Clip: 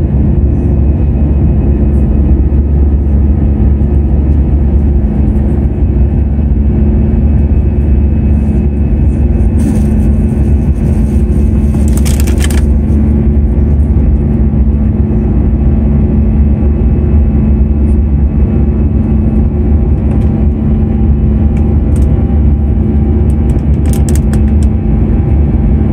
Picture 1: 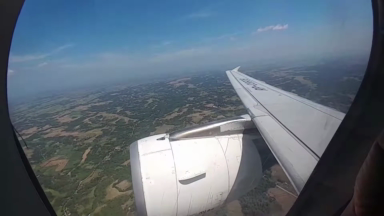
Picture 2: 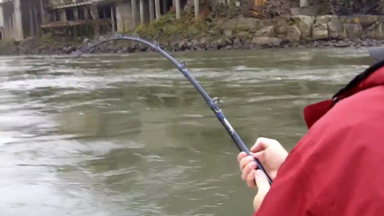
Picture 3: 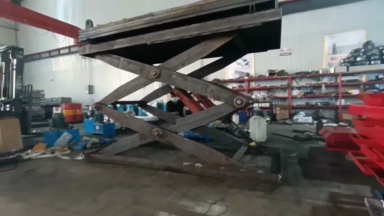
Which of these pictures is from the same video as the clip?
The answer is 1